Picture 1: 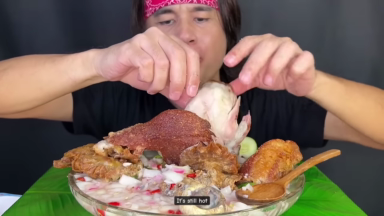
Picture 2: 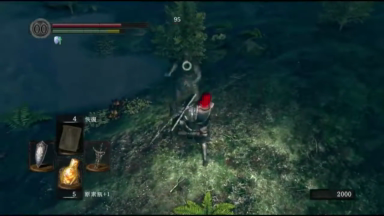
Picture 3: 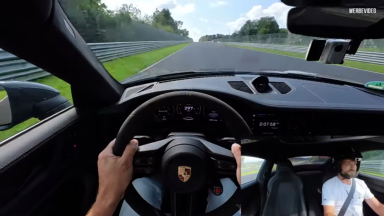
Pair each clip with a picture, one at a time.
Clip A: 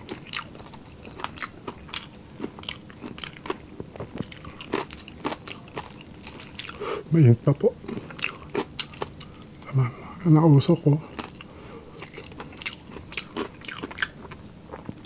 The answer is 1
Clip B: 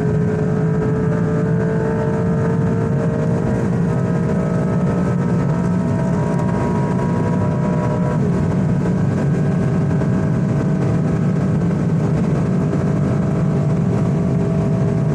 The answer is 3